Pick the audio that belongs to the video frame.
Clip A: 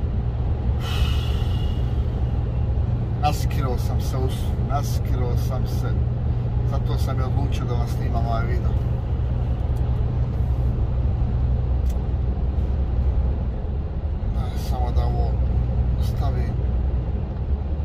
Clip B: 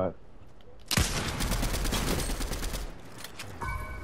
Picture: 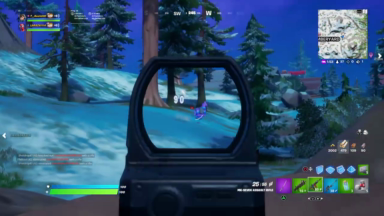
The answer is B